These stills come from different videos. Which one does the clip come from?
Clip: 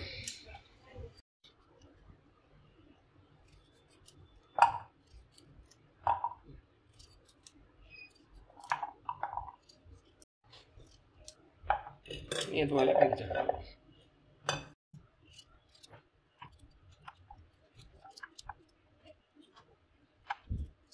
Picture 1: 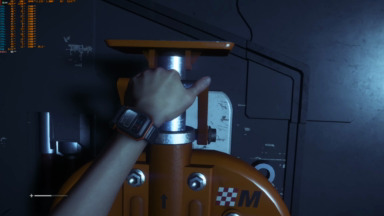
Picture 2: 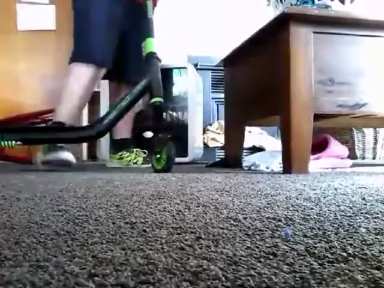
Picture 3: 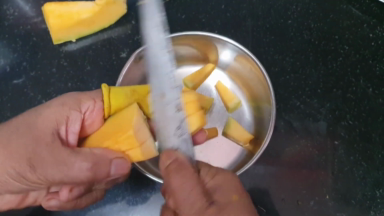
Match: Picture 3